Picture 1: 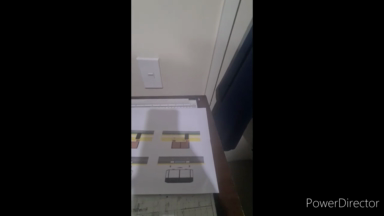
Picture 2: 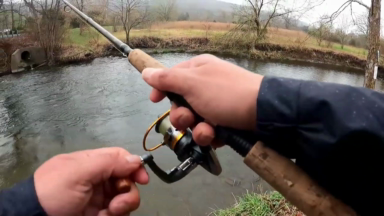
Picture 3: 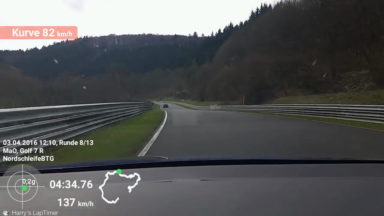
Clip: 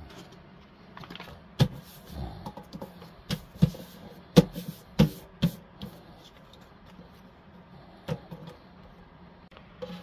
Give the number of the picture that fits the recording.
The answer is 1